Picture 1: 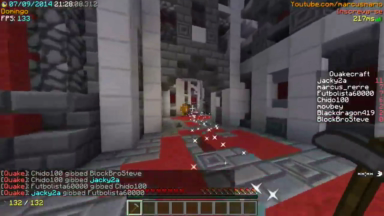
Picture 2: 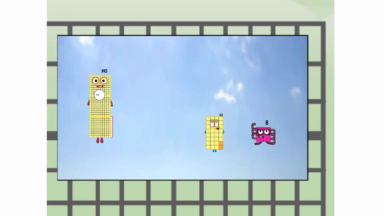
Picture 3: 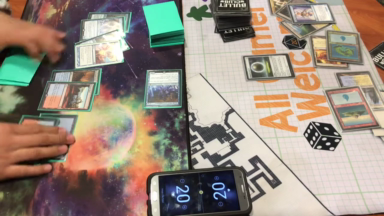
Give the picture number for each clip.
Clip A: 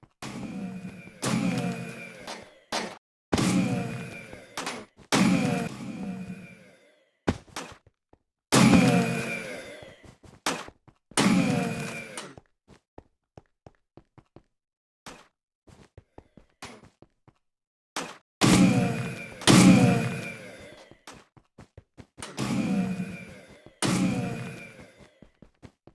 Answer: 1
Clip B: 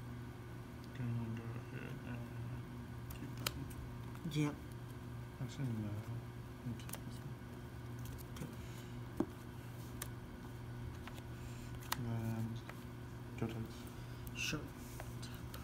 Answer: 3